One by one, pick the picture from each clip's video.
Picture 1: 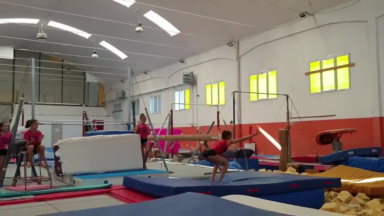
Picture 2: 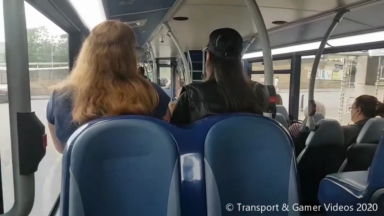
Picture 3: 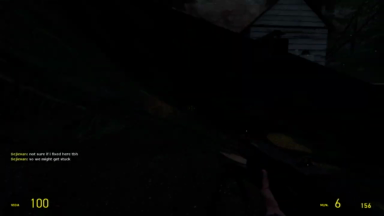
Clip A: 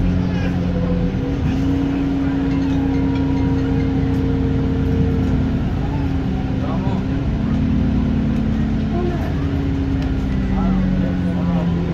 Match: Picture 2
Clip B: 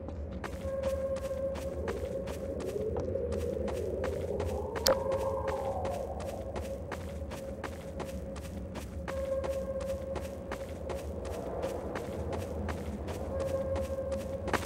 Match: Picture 3